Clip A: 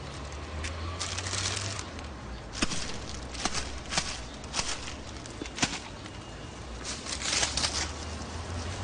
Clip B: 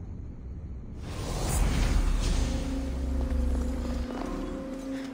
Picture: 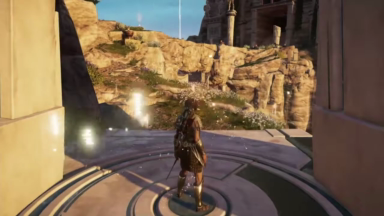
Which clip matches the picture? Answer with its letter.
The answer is B